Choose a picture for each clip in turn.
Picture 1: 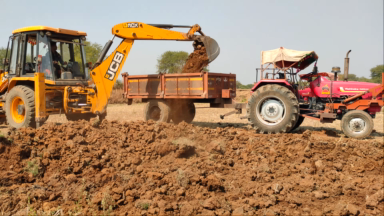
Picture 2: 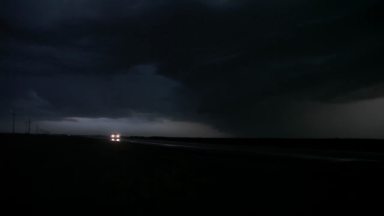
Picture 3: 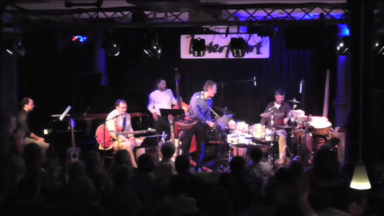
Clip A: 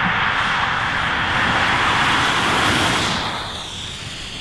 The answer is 2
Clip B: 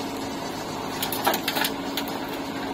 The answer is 1